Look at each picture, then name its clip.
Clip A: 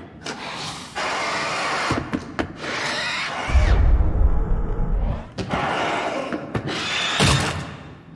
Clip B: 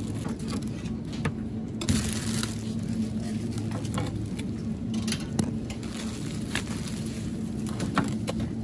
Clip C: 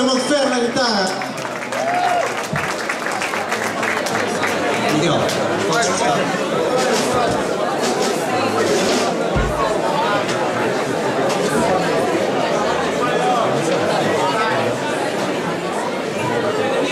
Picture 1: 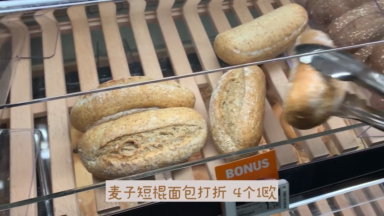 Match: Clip B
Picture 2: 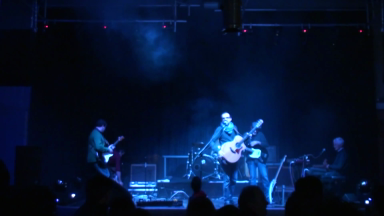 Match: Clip C